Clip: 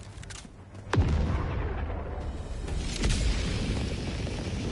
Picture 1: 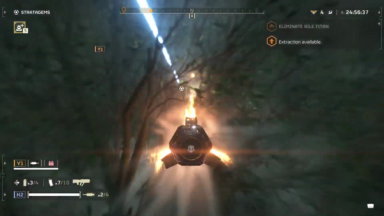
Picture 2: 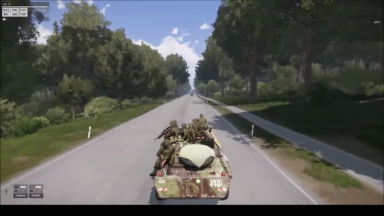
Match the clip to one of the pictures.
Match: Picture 1